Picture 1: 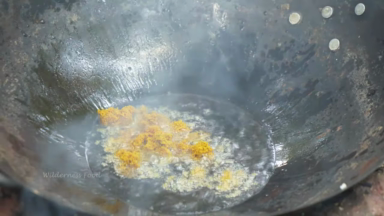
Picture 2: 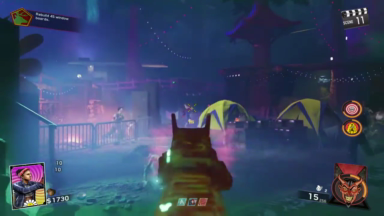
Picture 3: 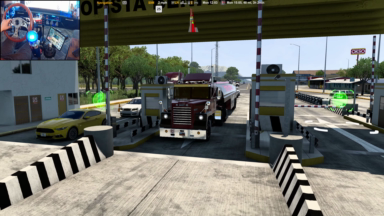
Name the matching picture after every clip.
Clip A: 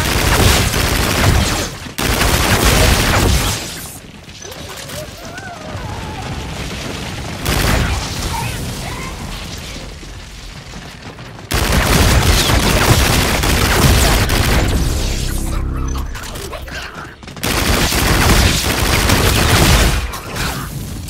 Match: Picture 2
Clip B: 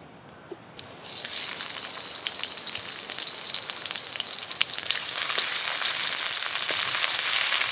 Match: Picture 1